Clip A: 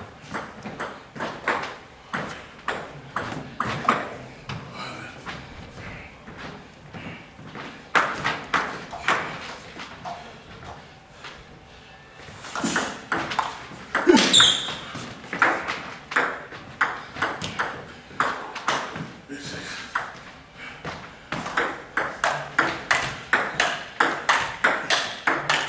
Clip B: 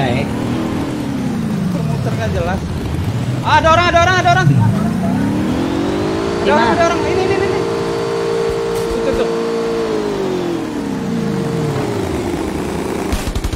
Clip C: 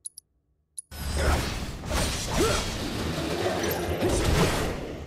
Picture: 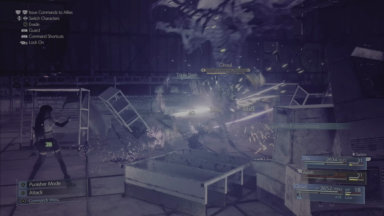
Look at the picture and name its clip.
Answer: C